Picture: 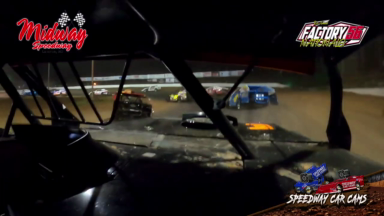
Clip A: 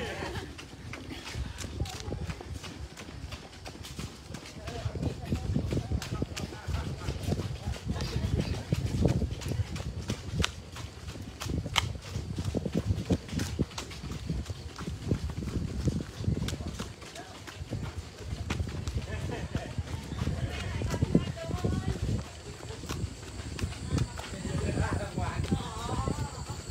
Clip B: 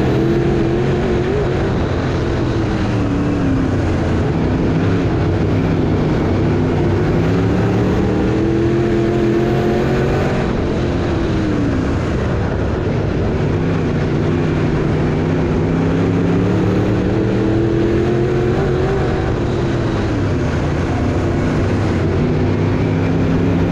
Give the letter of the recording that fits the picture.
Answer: B